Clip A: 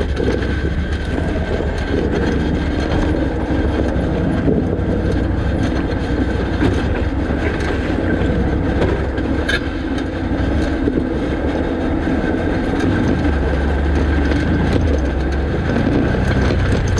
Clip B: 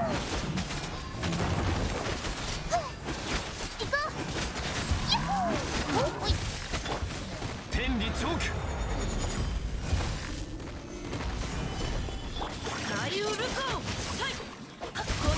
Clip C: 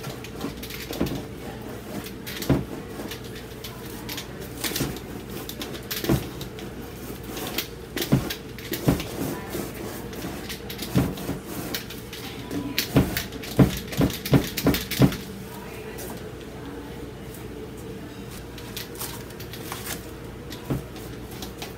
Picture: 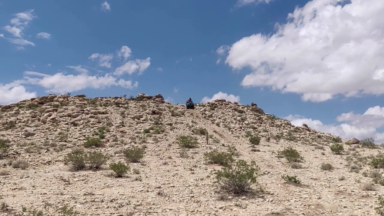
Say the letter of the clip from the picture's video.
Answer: A